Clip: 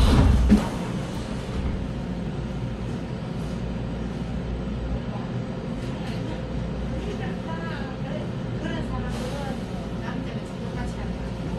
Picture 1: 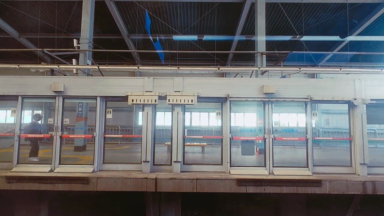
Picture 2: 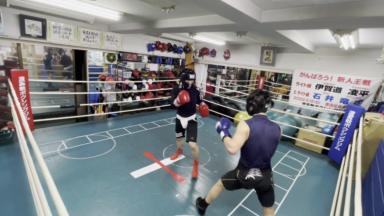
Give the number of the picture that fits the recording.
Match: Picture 1